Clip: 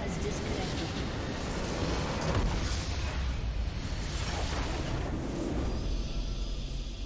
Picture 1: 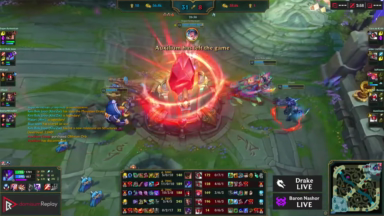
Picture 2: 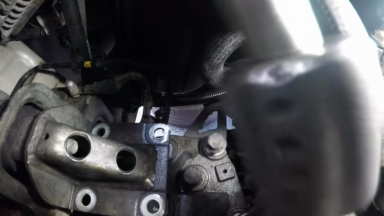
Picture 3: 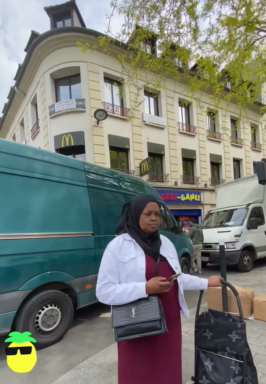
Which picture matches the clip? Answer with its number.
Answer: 1